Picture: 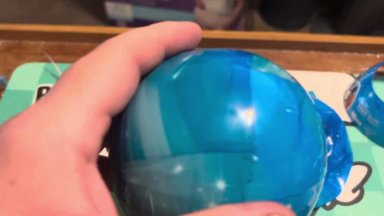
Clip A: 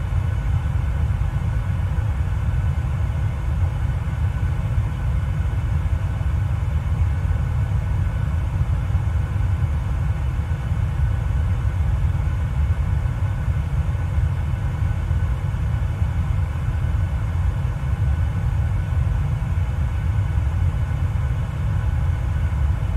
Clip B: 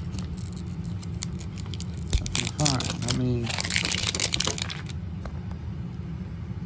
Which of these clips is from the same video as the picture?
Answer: B